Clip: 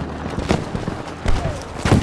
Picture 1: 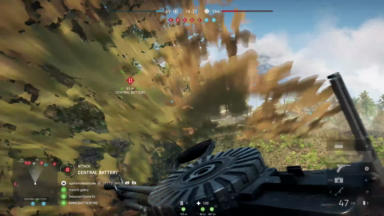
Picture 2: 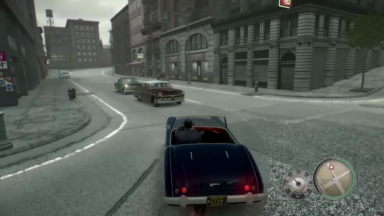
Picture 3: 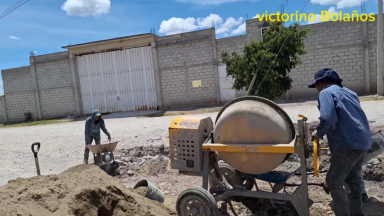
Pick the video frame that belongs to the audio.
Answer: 1